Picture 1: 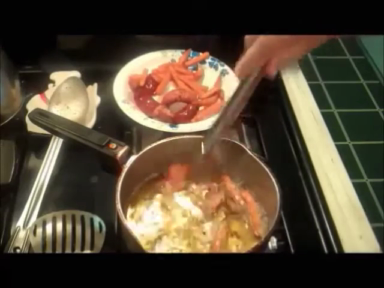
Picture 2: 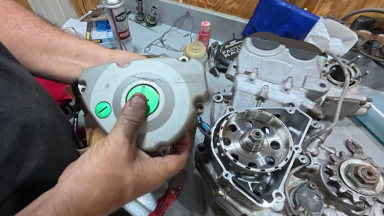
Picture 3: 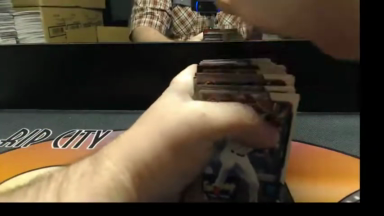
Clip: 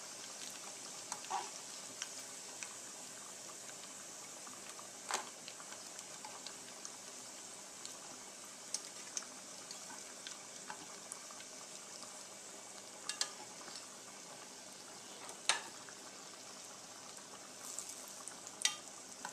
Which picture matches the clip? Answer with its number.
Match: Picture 1